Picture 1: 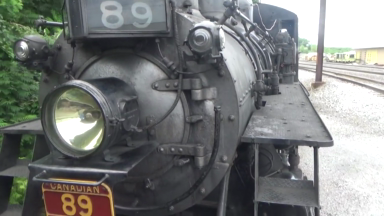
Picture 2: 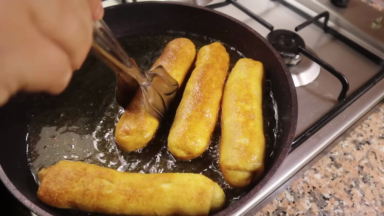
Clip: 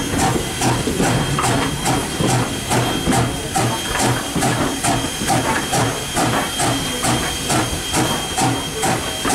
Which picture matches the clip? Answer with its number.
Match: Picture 1